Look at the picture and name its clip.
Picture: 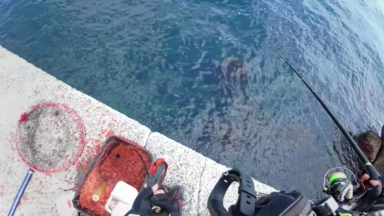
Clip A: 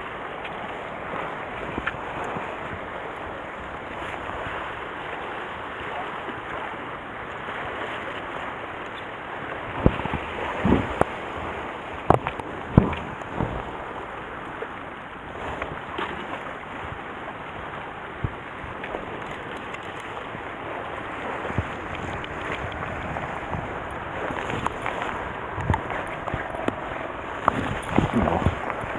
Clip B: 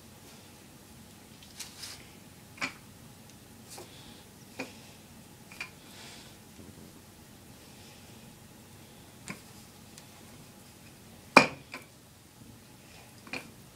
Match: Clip A